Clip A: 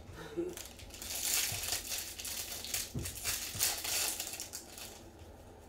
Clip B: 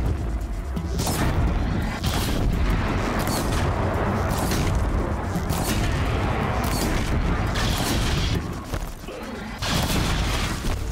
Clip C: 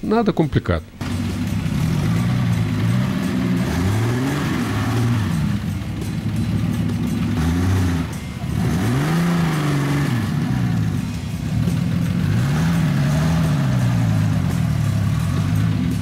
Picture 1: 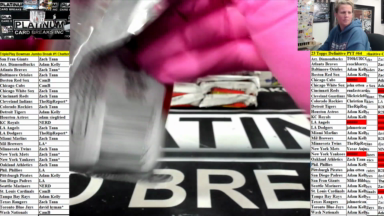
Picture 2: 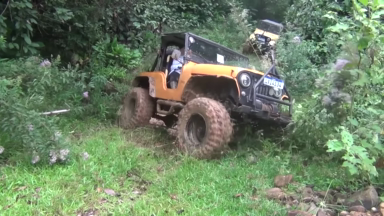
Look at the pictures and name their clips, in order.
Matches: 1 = A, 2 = C